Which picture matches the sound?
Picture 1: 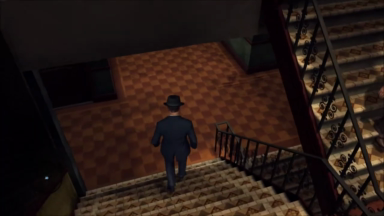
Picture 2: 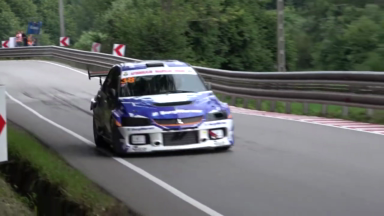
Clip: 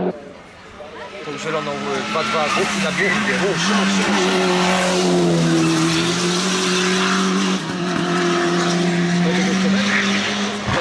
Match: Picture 2